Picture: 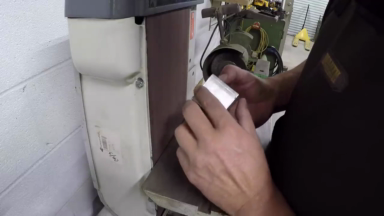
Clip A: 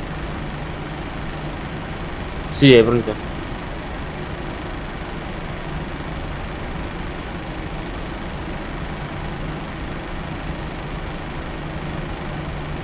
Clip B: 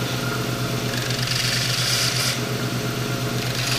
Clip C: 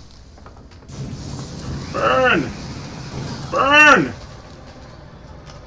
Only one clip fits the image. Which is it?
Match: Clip B